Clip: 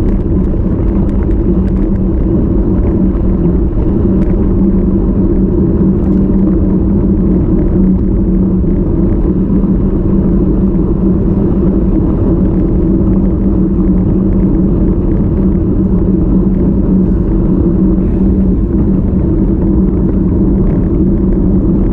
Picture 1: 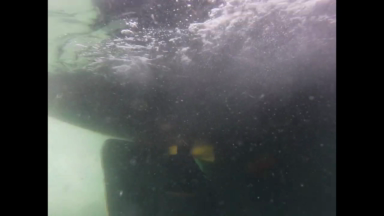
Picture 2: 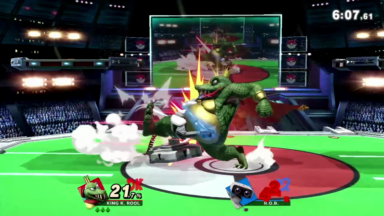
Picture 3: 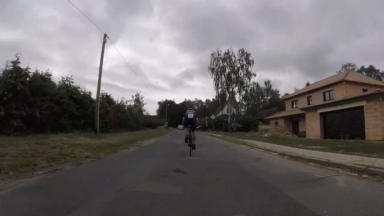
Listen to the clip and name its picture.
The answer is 3